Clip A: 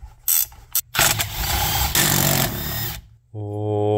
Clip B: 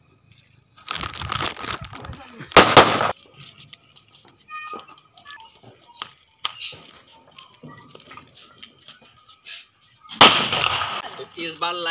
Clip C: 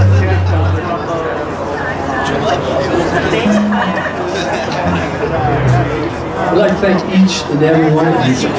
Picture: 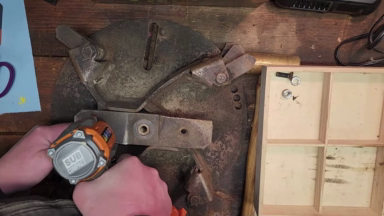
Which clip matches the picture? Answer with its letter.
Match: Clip A